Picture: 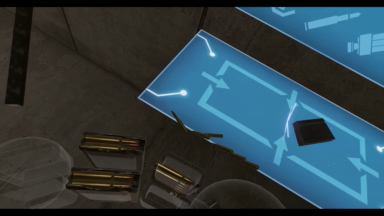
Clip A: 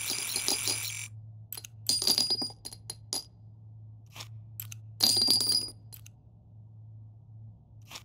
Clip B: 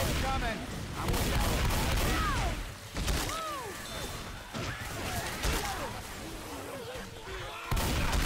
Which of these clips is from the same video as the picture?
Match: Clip A